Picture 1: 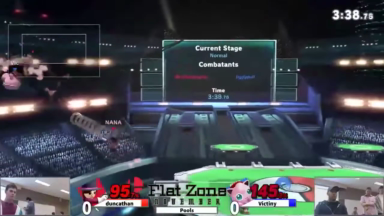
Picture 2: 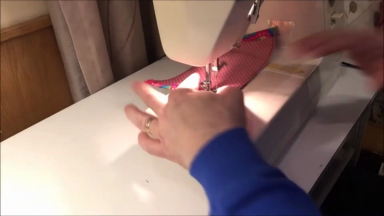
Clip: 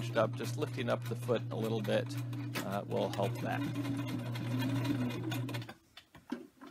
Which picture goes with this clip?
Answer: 2